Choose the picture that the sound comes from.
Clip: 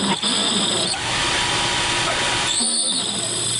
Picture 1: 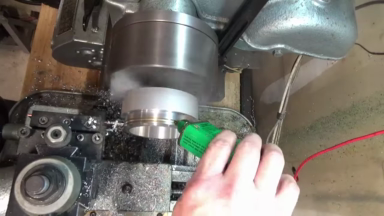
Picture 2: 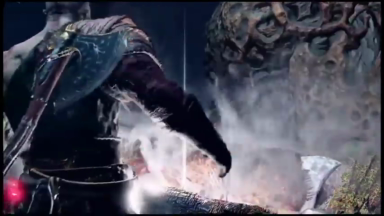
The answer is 1